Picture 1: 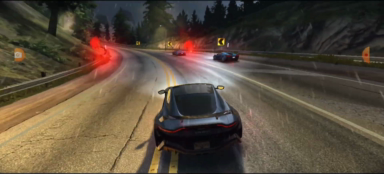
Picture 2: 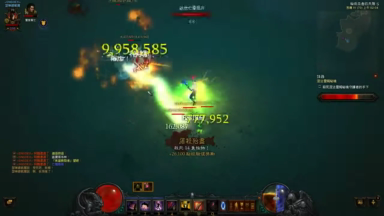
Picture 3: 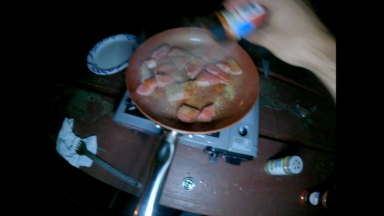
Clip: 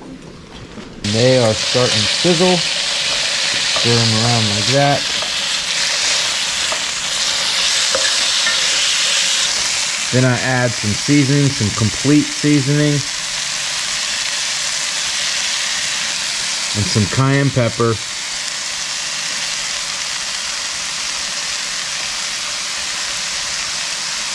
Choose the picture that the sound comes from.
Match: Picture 3